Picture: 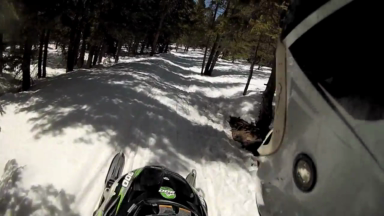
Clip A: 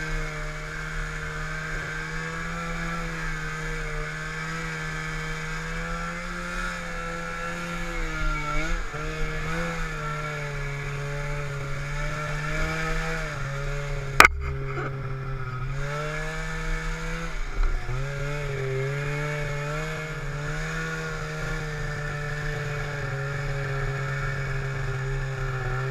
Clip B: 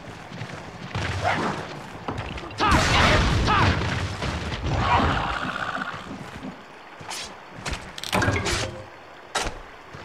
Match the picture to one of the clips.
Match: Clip A